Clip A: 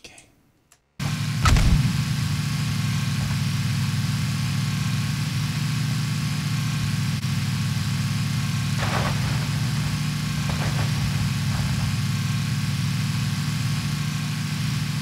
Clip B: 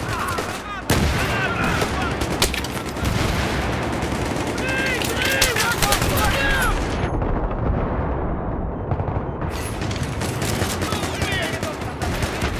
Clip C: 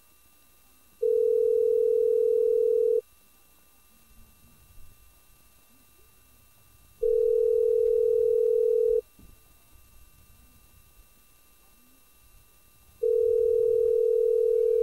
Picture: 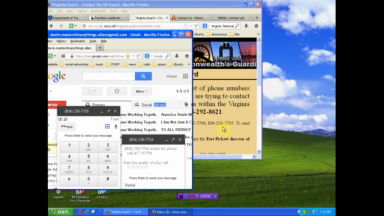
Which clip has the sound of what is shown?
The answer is C